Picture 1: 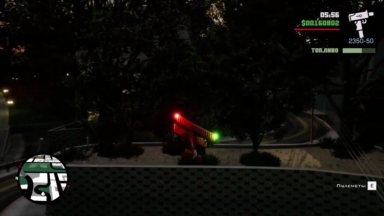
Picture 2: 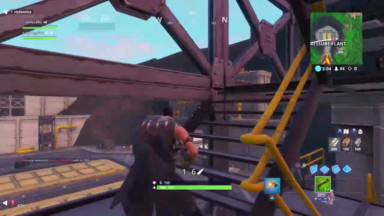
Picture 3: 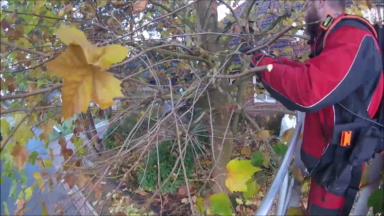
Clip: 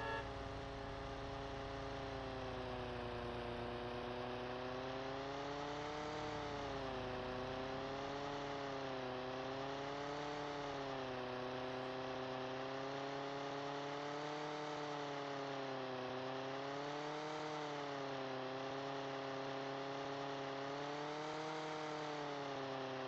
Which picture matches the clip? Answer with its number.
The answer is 1